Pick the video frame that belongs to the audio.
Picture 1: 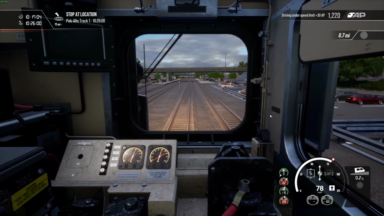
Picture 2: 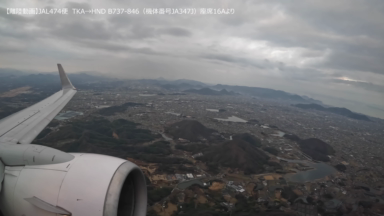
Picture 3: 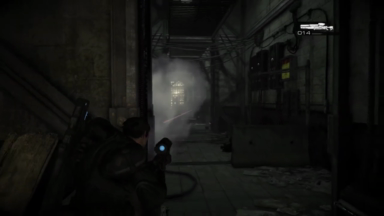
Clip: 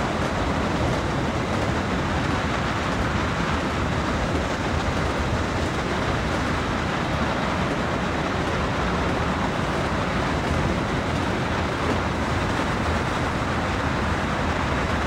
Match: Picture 1